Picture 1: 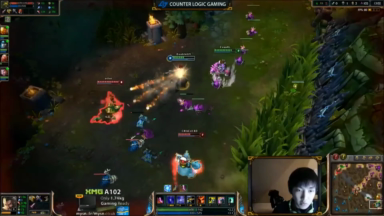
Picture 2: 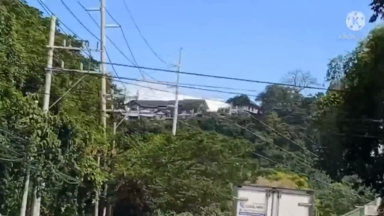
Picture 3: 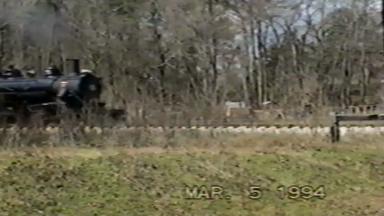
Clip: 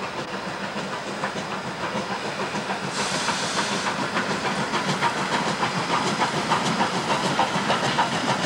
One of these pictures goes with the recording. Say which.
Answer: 3